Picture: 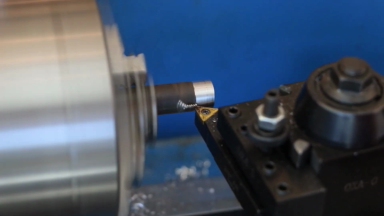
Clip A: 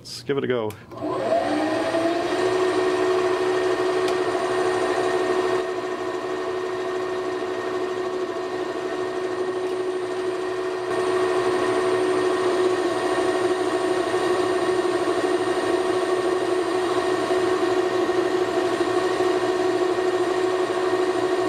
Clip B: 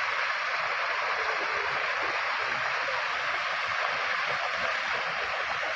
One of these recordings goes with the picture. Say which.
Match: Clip A